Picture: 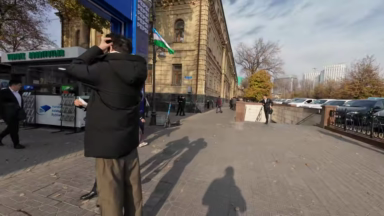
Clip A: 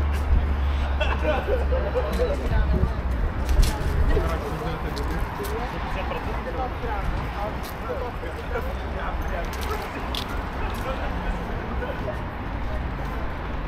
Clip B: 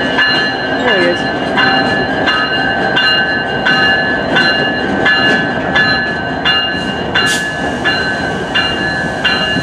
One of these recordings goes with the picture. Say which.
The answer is A